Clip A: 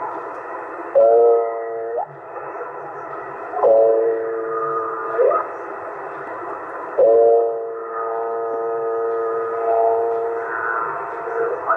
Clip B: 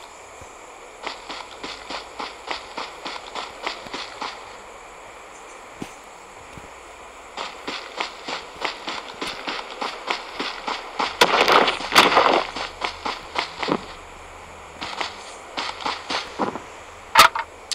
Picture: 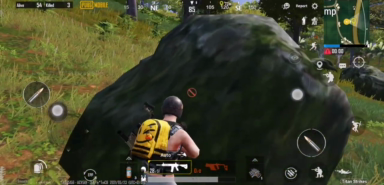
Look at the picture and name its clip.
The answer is B